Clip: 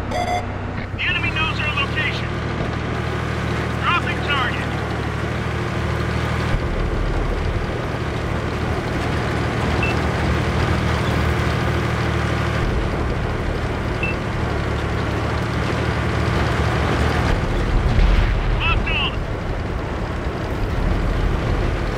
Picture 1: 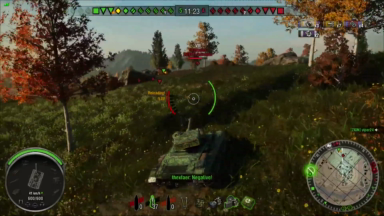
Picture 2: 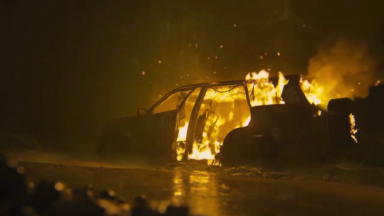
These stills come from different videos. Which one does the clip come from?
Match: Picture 1